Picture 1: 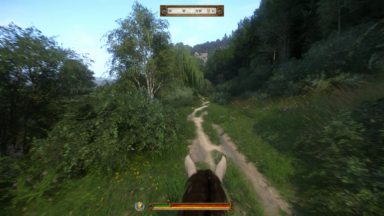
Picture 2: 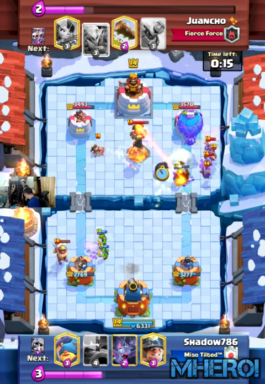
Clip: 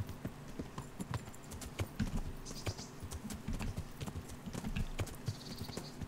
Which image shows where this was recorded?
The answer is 1